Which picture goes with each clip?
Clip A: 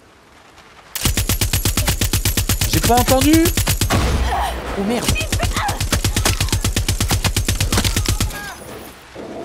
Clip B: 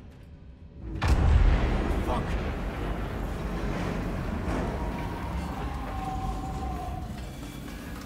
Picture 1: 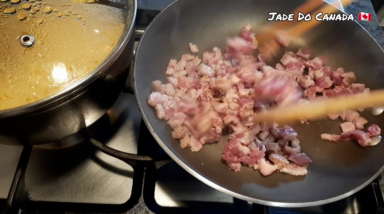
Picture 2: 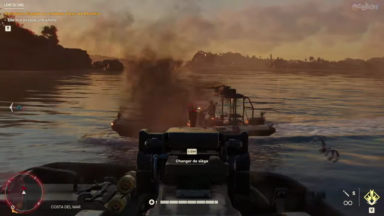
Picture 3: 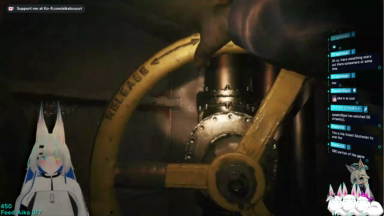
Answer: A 2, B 3